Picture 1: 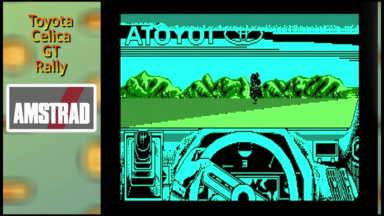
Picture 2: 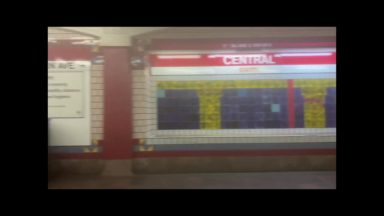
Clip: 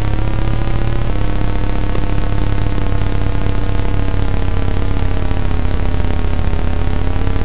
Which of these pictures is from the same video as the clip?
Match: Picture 1